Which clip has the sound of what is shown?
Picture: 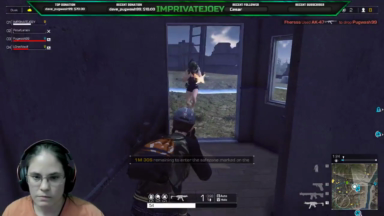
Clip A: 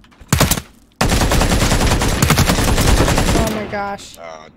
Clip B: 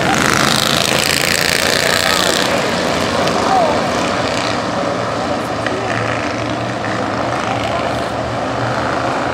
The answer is A